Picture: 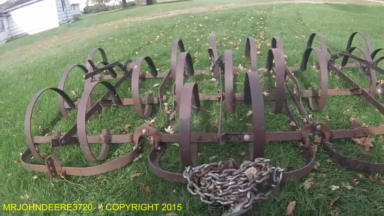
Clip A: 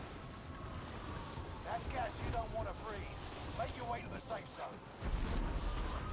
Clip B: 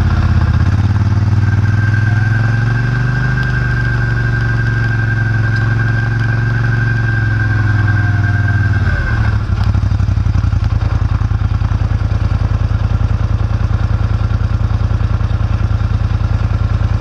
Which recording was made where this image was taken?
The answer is B